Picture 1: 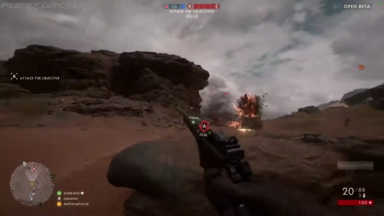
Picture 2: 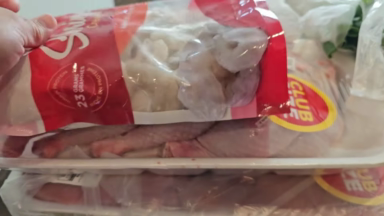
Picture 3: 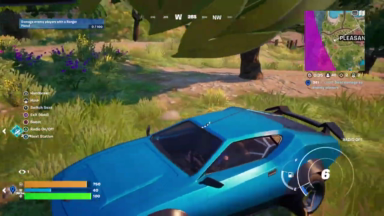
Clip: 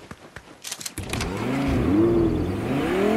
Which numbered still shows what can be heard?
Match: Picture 3